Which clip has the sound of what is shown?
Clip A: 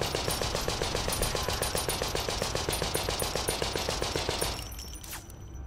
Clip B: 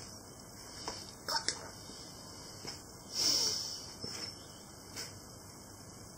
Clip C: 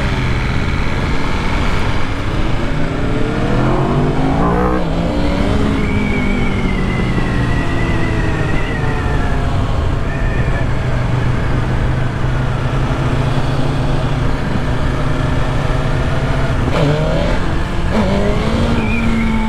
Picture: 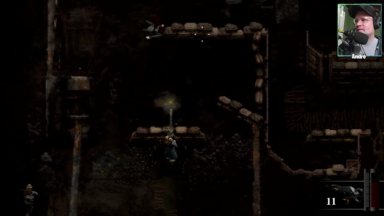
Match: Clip A